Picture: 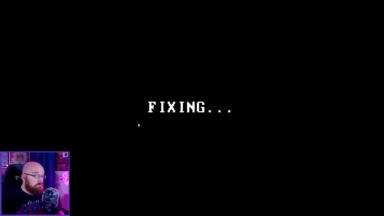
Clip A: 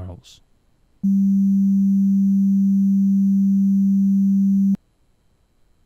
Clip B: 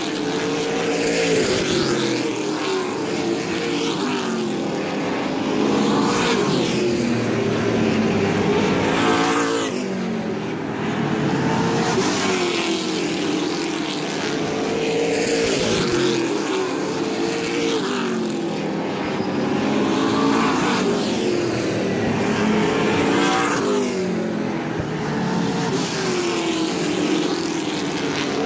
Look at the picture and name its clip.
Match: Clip A